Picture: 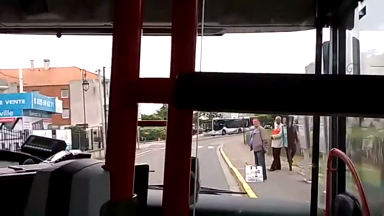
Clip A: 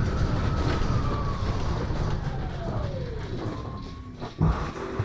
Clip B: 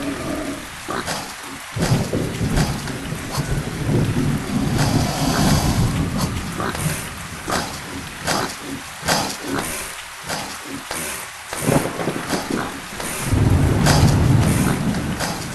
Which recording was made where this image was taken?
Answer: A